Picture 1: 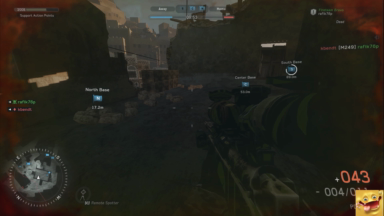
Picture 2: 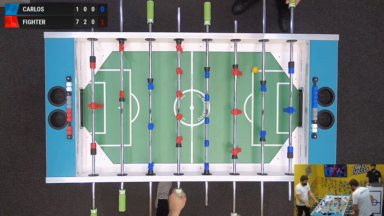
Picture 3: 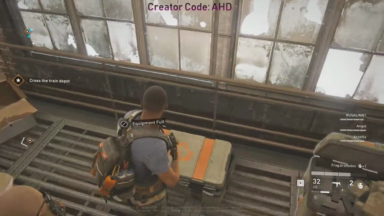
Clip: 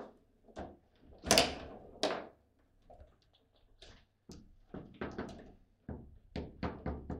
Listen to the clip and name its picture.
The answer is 2